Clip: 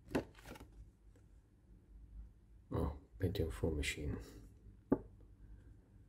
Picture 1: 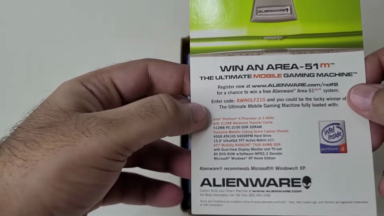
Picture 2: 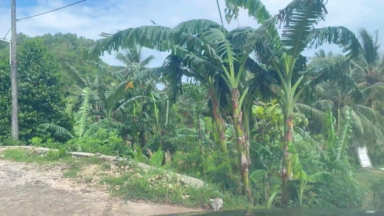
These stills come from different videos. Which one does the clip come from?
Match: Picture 1